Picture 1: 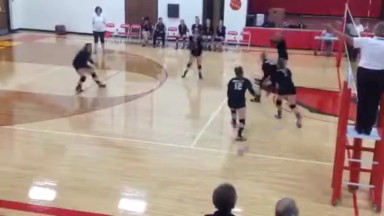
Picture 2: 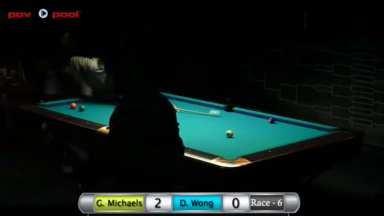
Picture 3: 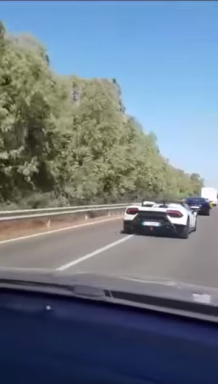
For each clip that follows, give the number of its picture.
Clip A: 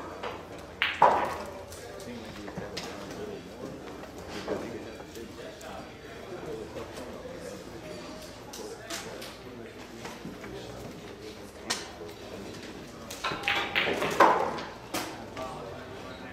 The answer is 2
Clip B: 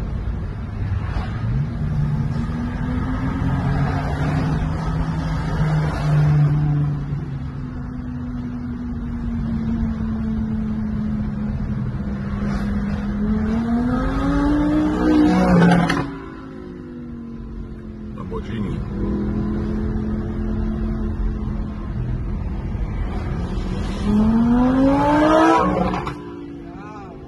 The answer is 3